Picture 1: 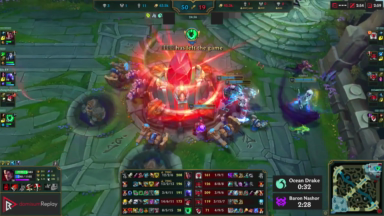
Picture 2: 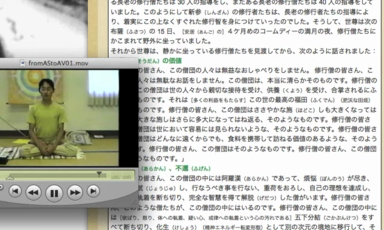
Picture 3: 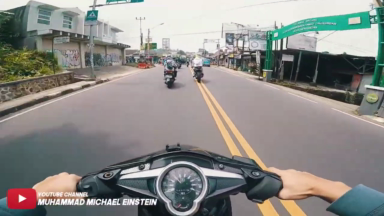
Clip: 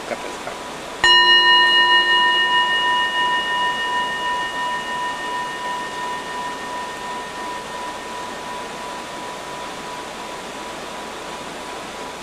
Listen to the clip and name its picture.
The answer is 2